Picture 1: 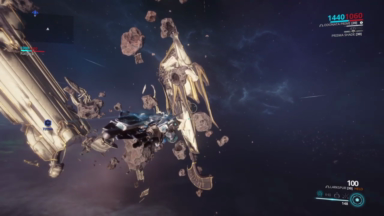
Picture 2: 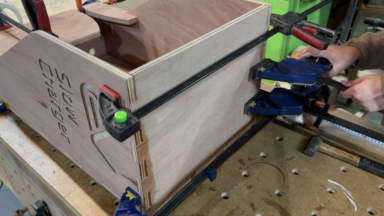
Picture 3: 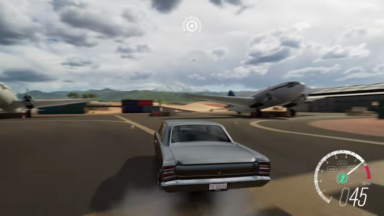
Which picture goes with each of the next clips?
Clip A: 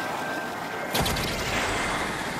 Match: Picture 1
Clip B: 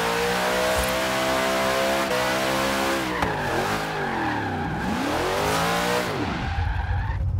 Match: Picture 3